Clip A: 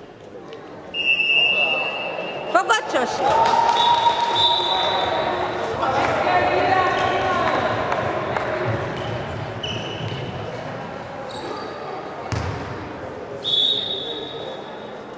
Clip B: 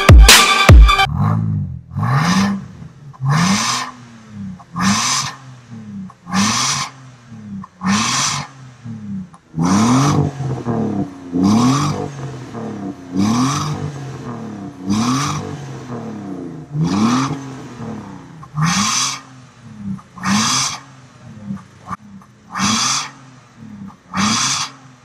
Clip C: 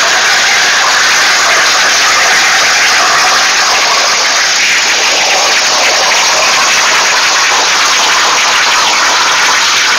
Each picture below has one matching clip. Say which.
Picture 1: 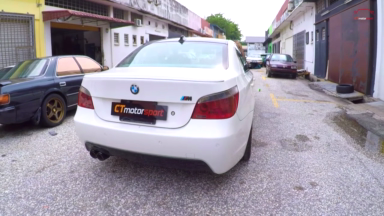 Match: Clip B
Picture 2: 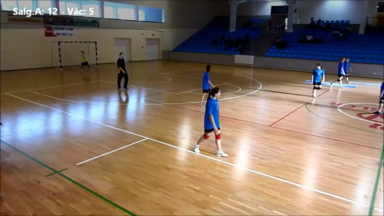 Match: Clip A